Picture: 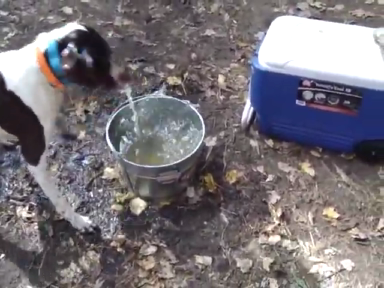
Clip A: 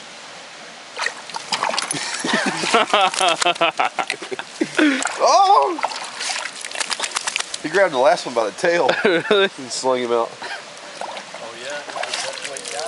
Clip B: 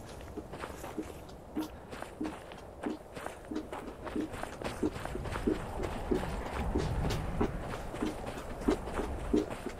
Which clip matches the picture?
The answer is A